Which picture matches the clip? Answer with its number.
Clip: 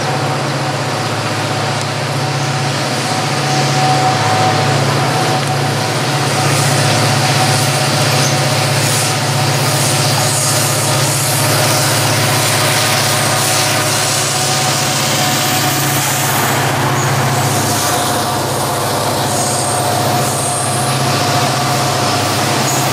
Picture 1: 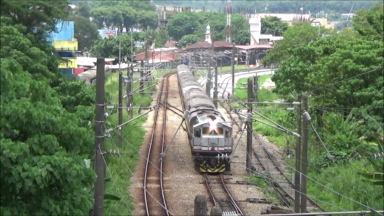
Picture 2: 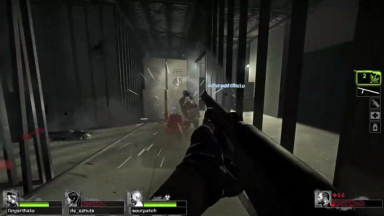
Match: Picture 1